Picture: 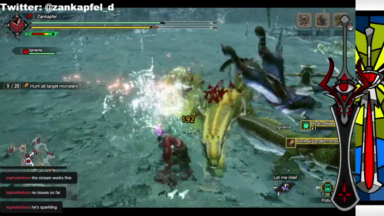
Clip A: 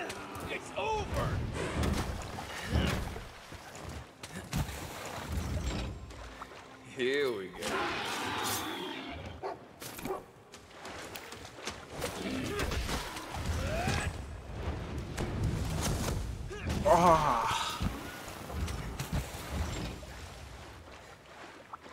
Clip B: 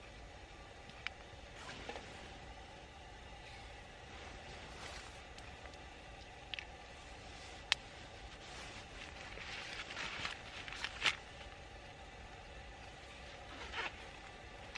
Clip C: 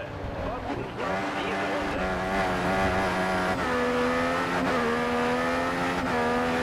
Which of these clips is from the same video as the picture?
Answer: A